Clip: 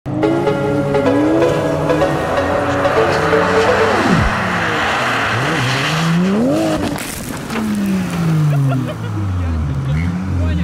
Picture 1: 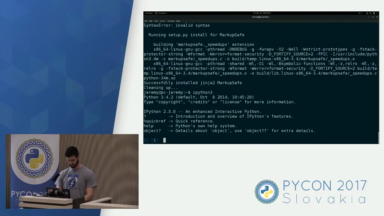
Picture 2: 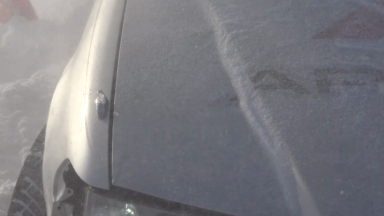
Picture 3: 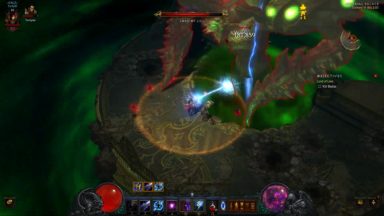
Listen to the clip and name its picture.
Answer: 2